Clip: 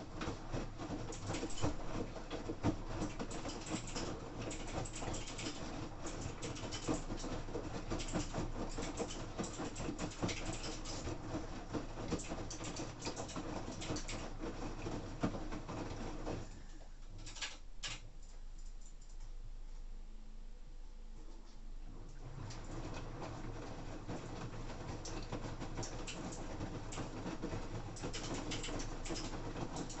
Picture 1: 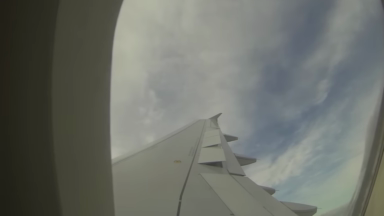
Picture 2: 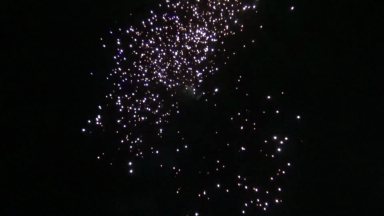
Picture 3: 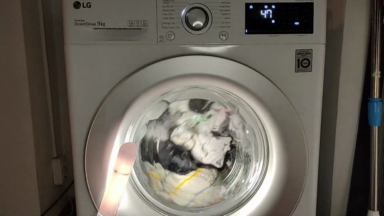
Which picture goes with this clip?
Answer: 3